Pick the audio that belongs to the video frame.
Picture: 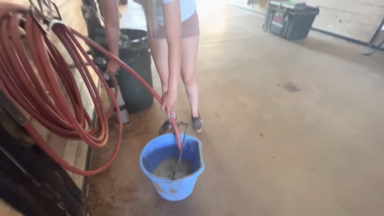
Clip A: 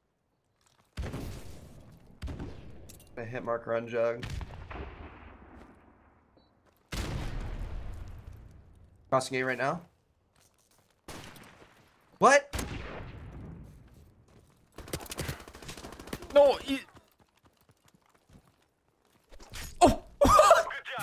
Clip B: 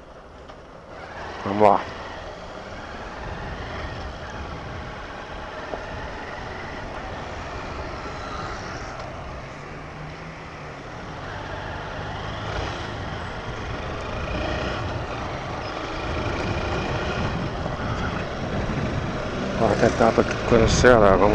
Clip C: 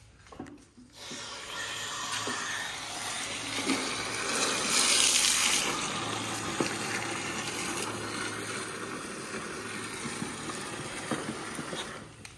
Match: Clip C